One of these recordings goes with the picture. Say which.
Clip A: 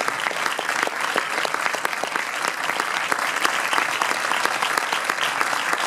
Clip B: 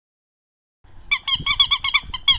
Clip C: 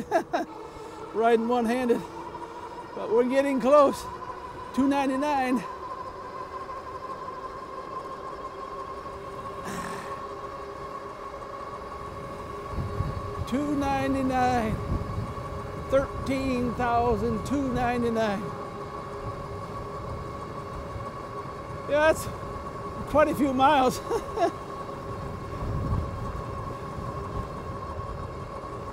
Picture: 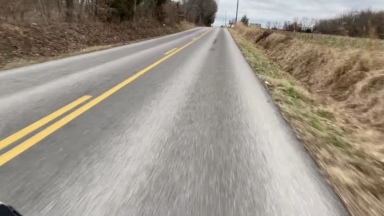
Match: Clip C